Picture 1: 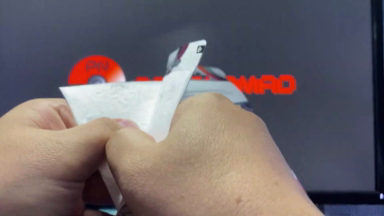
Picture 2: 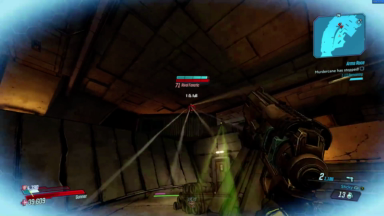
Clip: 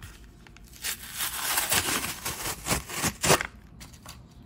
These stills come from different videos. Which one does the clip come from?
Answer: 1